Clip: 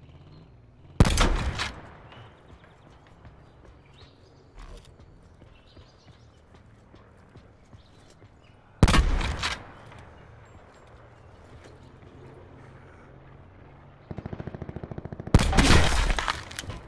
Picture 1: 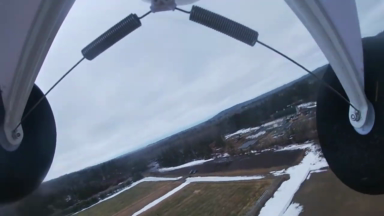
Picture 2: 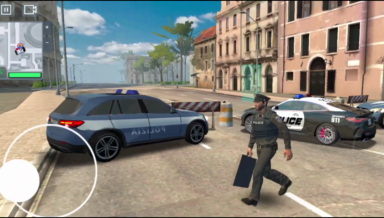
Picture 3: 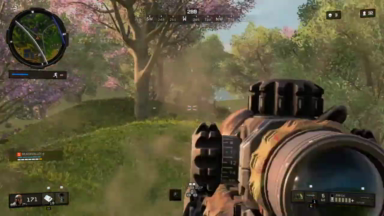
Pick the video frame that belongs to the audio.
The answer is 3